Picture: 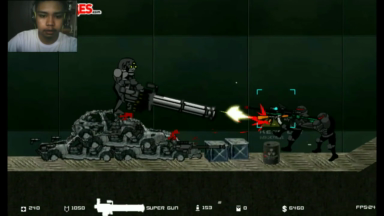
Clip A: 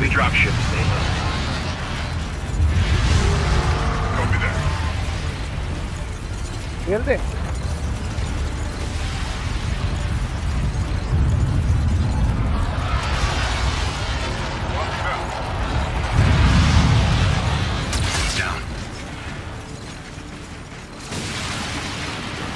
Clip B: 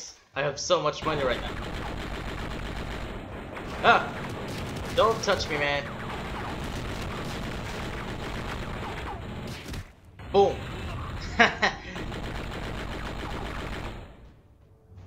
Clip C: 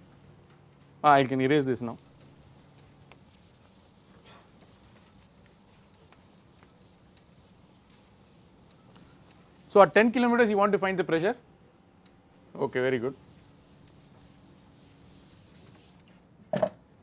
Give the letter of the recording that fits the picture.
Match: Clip B